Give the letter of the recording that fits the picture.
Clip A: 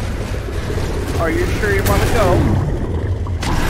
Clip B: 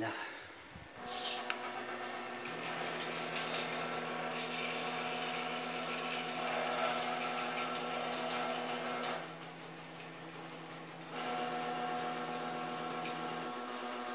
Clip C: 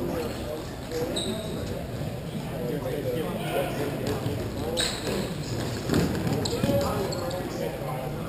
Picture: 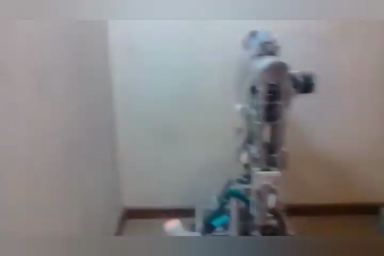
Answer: B